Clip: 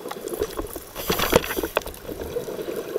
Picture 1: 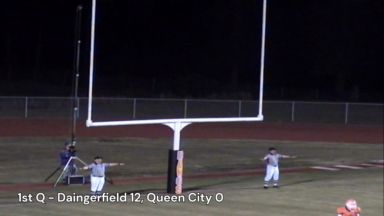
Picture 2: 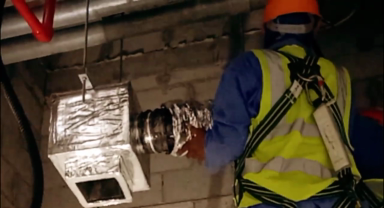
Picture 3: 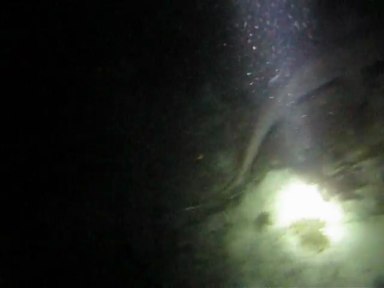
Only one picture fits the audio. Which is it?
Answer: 3